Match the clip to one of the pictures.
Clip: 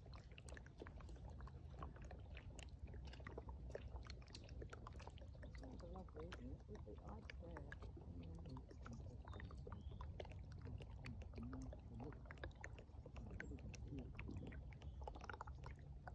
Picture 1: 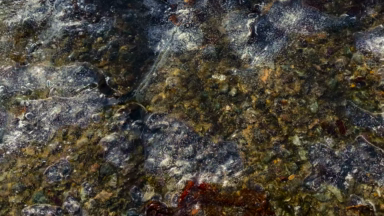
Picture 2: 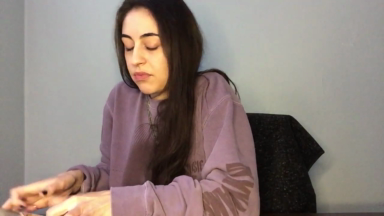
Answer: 1